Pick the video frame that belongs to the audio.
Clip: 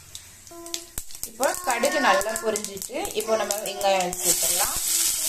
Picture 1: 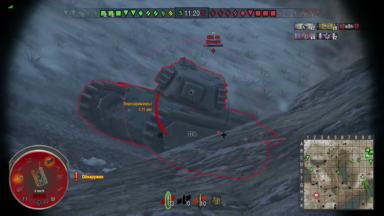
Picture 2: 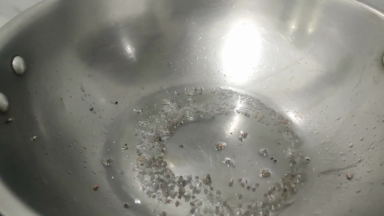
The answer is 2